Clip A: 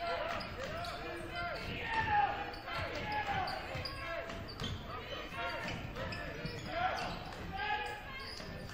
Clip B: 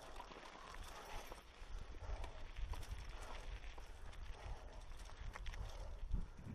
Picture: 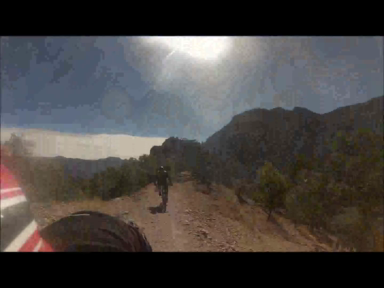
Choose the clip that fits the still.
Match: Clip B